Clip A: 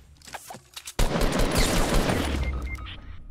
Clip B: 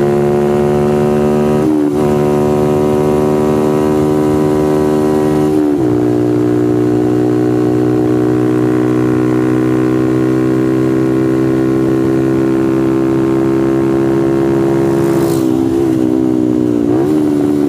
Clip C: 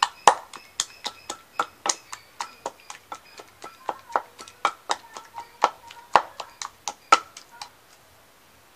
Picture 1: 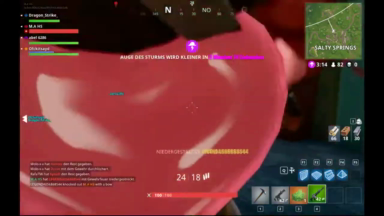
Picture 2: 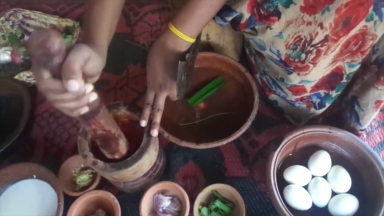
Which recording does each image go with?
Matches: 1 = A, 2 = C